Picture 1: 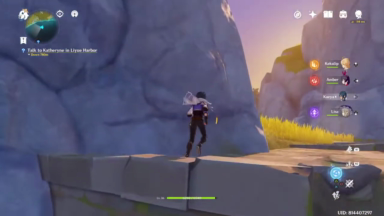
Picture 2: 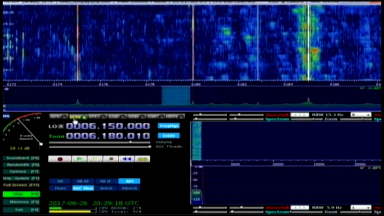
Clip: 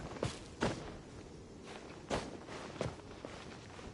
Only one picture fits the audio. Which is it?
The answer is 1